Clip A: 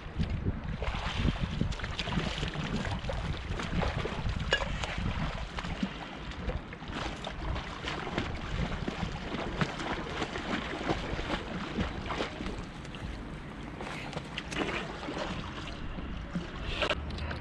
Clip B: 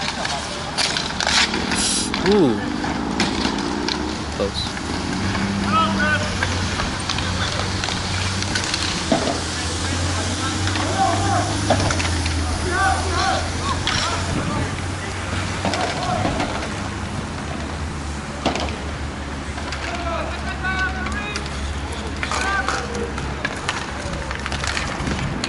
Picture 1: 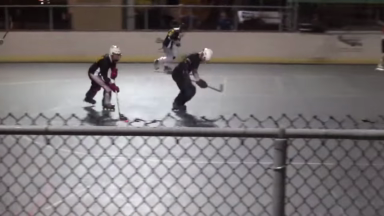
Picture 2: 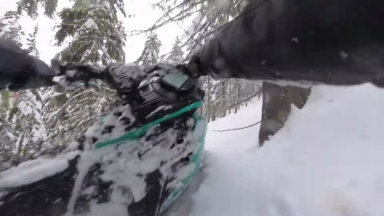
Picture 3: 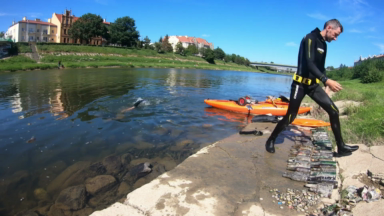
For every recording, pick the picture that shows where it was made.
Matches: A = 3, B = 1